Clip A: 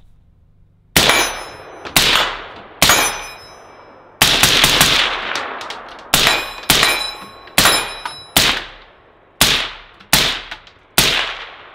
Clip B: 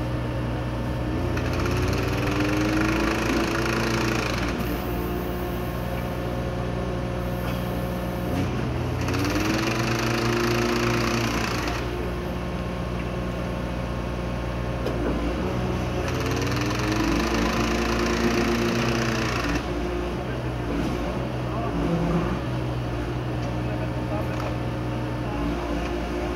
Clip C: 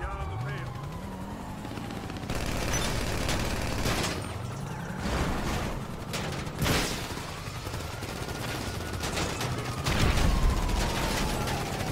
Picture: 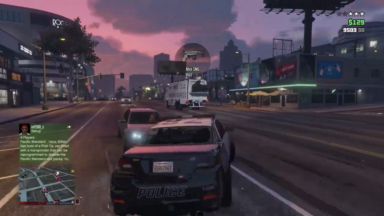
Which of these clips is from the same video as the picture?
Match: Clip C